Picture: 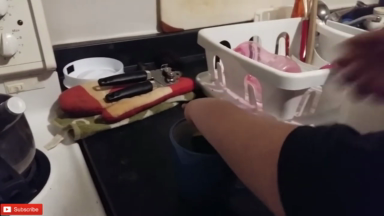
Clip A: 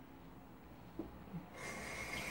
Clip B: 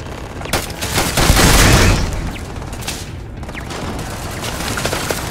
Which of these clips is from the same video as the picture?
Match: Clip A